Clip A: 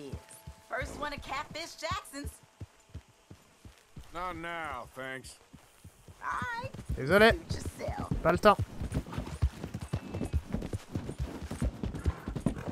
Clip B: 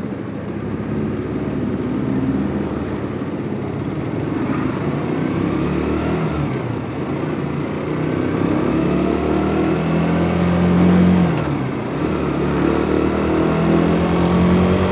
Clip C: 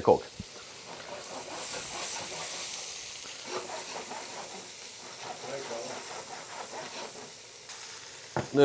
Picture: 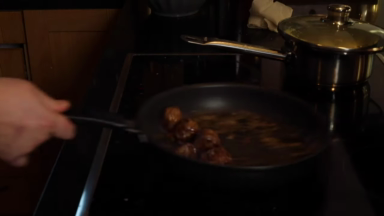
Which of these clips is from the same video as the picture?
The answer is C